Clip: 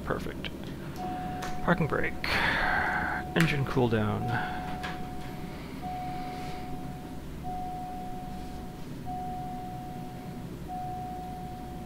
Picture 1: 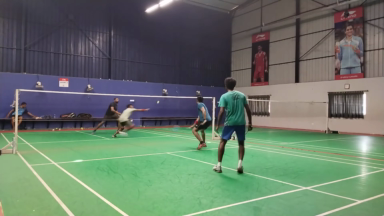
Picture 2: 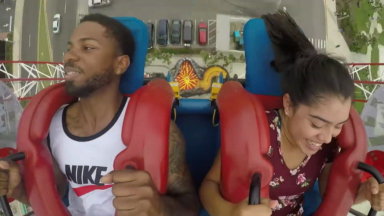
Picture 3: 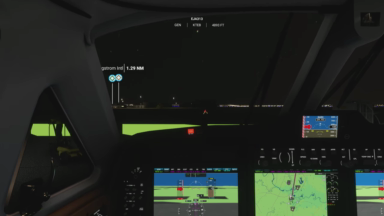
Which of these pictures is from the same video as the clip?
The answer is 3